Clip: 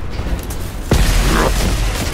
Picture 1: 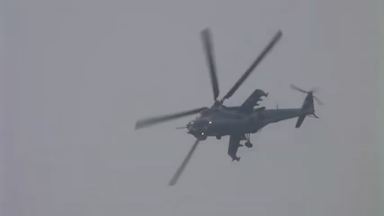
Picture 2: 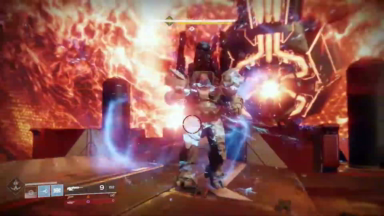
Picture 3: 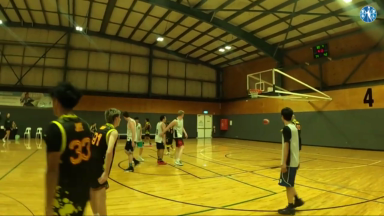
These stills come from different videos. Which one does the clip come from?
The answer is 2